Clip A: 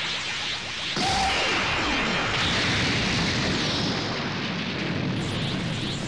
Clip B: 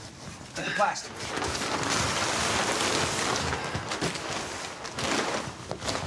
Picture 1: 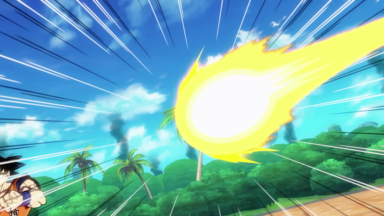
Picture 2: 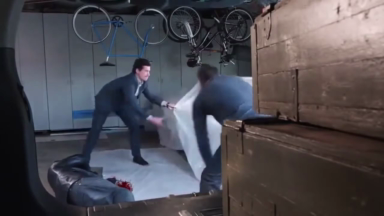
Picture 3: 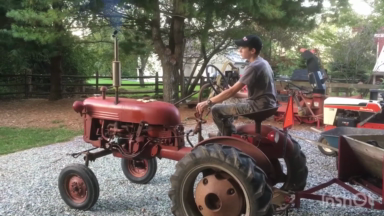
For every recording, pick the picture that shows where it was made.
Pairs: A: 1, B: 2